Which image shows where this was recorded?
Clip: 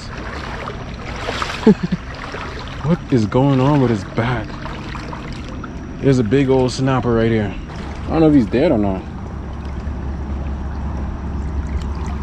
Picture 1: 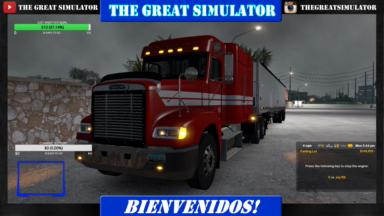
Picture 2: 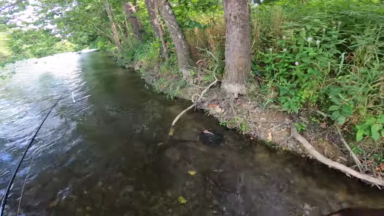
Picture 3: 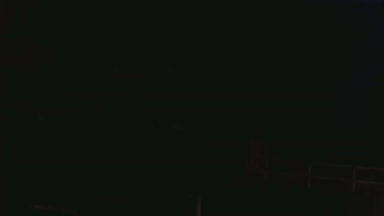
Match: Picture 2